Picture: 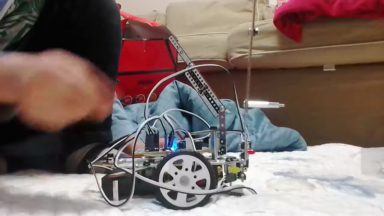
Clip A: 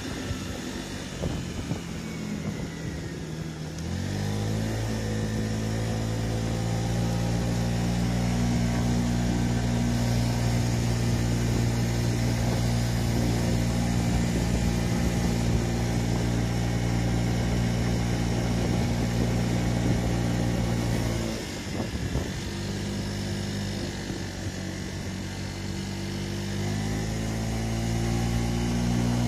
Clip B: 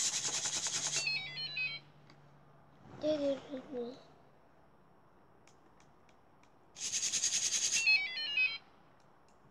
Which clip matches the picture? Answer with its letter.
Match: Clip B